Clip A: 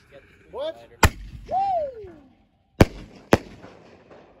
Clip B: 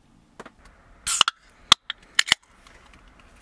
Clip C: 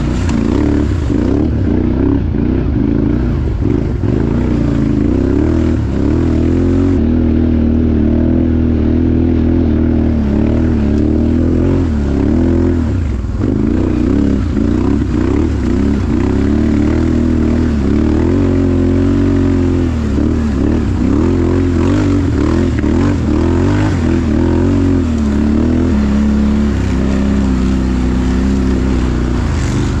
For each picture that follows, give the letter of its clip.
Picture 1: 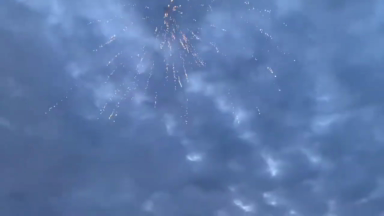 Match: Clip A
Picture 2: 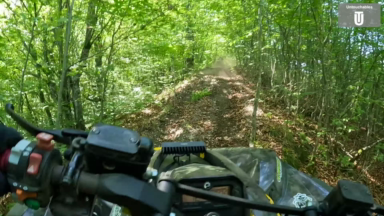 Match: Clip C